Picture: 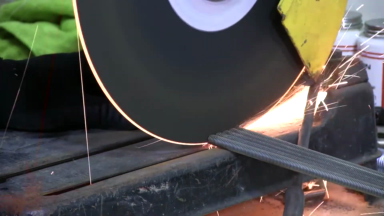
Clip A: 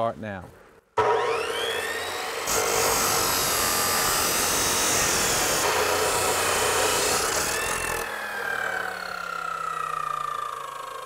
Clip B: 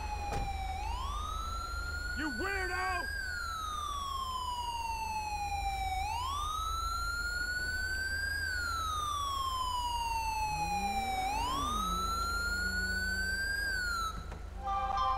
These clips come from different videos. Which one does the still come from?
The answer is A